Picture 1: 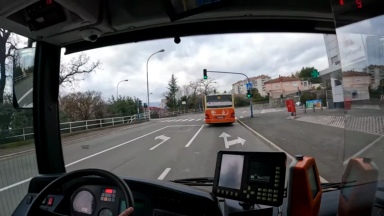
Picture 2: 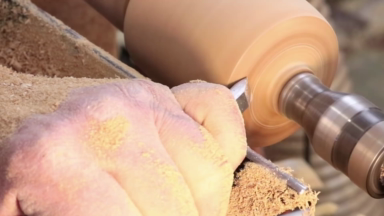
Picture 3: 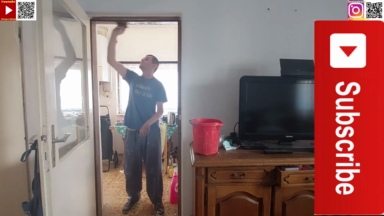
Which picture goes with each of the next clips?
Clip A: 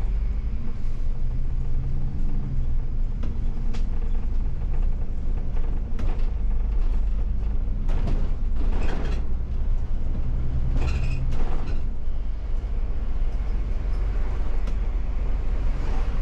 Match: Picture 1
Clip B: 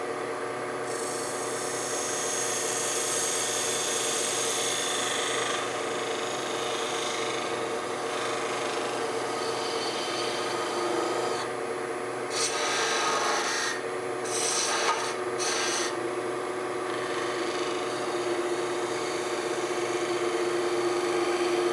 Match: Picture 2